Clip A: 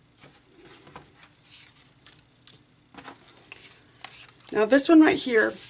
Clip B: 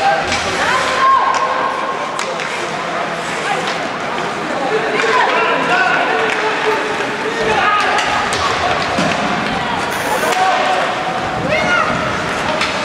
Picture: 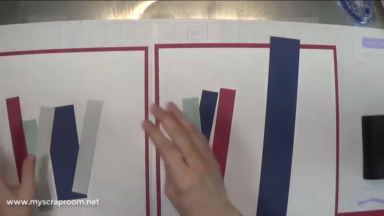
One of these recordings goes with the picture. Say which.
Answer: A